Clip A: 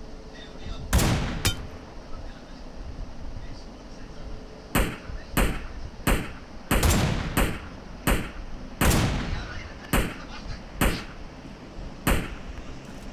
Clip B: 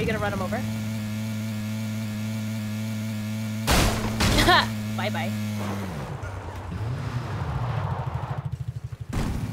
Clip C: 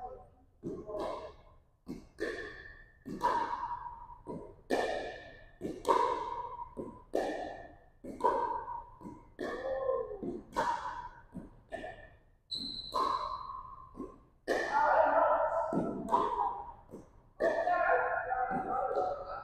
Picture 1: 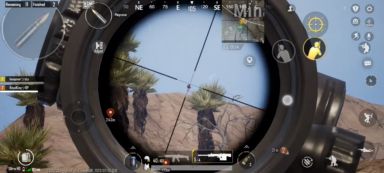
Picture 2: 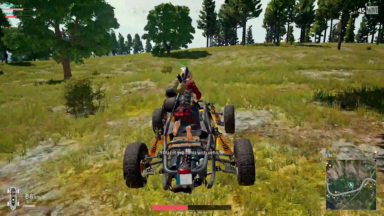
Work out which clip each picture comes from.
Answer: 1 A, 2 B